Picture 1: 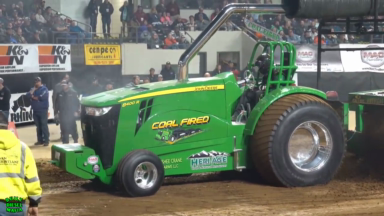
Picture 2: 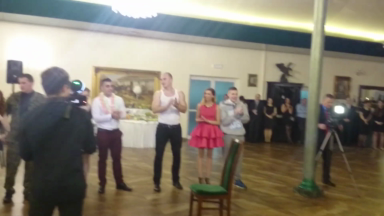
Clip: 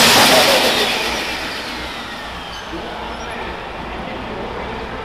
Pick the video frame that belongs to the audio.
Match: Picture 1